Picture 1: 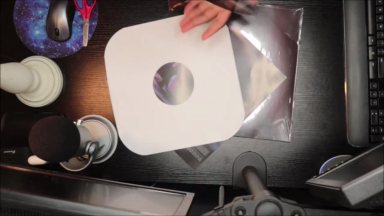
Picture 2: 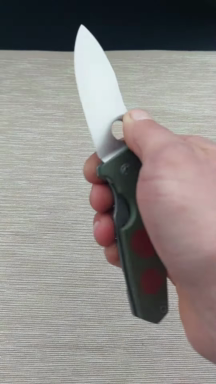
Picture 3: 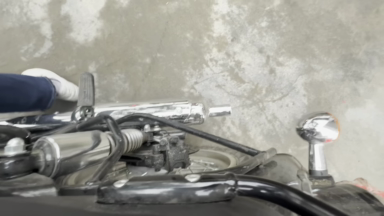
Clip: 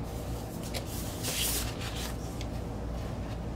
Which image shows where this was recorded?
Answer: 1